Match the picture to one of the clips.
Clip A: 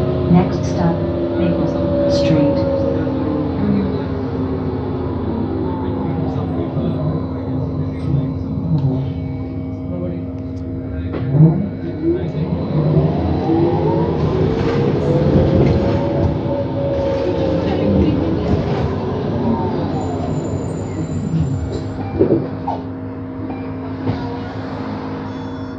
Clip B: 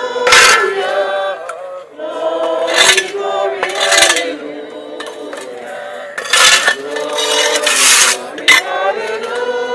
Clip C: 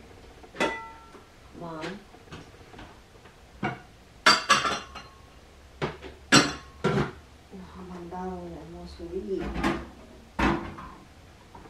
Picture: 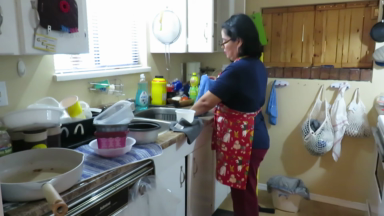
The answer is C